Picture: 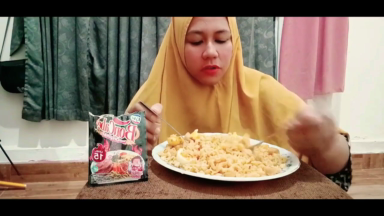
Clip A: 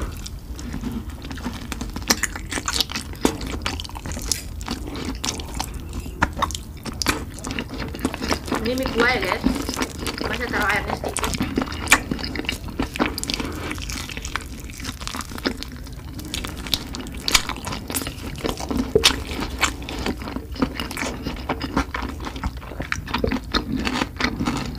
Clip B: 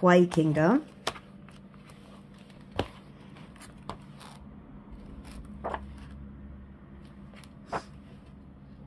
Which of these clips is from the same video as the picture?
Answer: A